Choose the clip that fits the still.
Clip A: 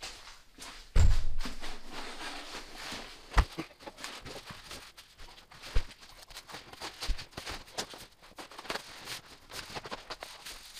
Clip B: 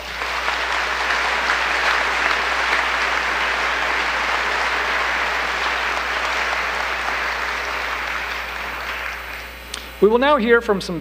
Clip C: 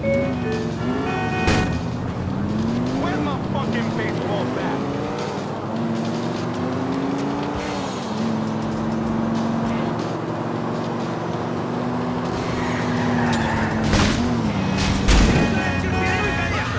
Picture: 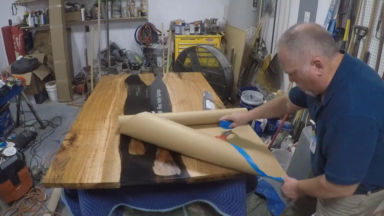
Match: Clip A